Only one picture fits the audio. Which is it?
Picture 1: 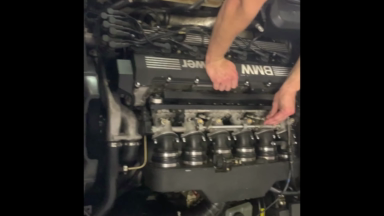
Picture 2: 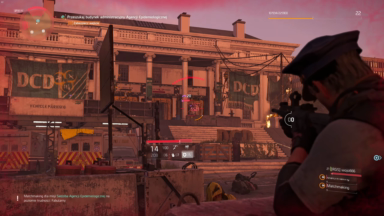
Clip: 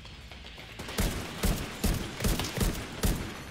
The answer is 2